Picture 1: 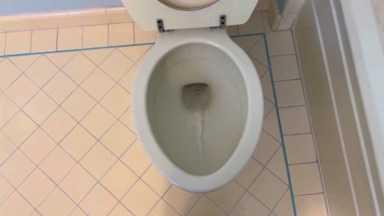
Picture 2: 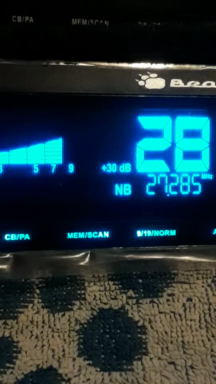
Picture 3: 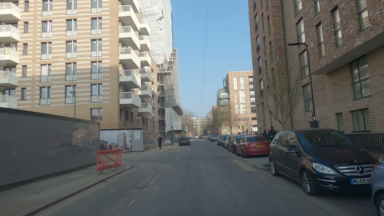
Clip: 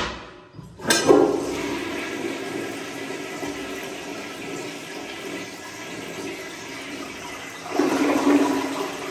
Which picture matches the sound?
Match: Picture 1